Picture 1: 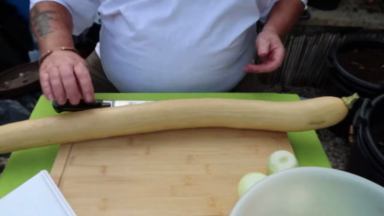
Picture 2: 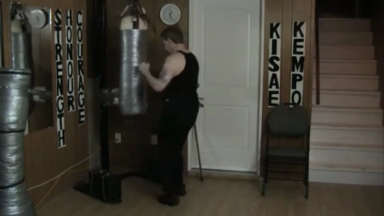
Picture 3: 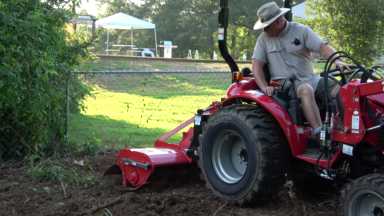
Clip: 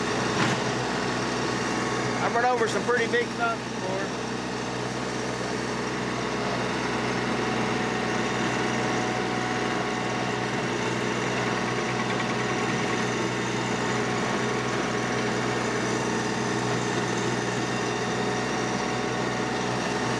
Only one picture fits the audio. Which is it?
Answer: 3